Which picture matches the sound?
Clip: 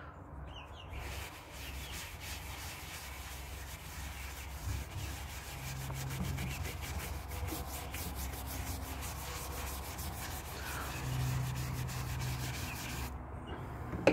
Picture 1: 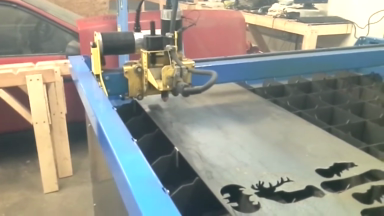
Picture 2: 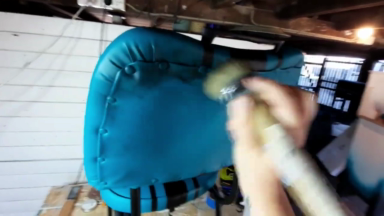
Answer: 2